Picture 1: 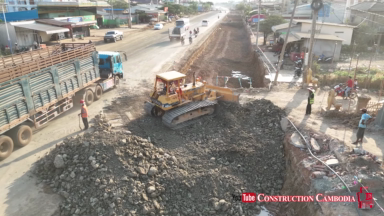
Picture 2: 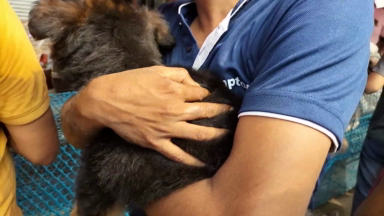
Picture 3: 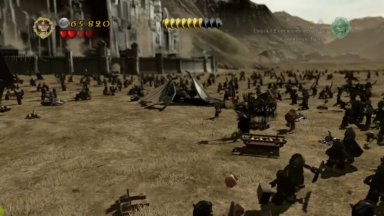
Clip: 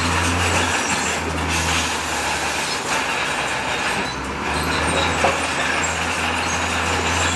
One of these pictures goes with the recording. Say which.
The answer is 1